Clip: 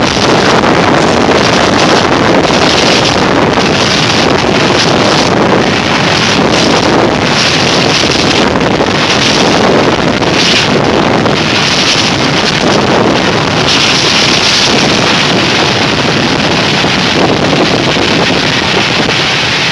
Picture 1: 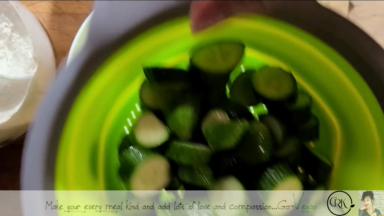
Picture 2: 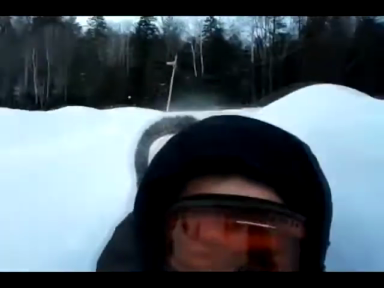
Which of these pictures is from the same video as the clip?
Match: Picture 2